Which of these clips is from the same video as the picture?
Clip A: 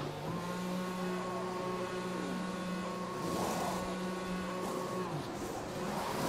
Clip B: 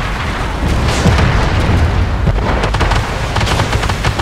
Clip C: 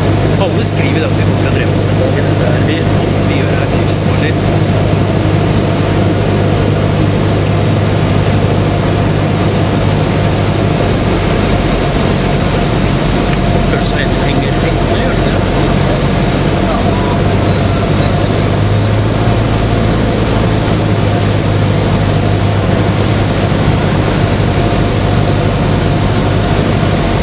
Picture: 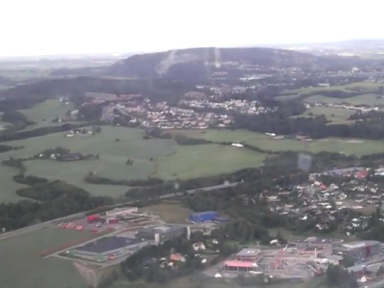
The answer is C